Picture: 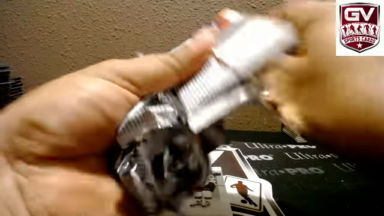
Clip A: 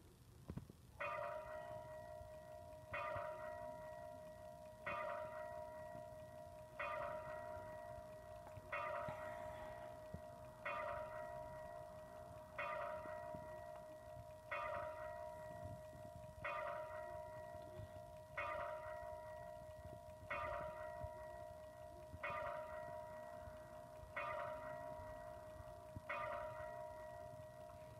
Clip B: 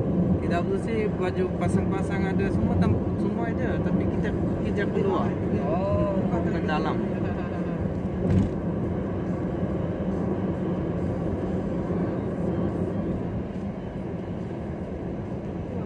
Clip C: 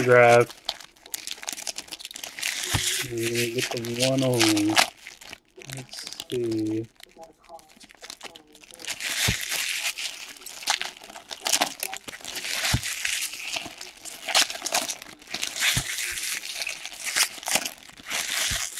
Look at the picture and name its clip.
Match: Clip C